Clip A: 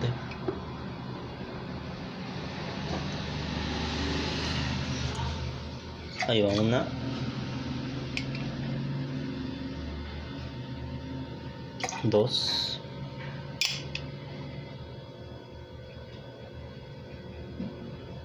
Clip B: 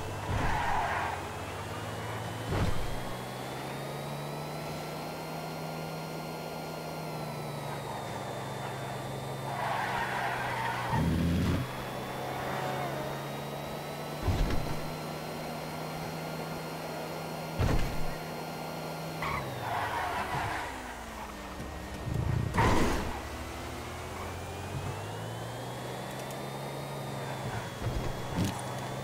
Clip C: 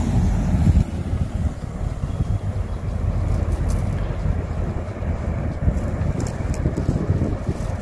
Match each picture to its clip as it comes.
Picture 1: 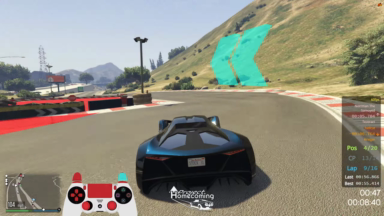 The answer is B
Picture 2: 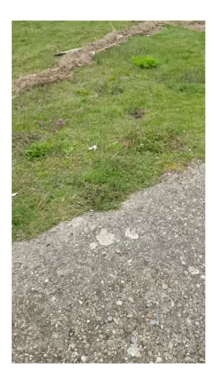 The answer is C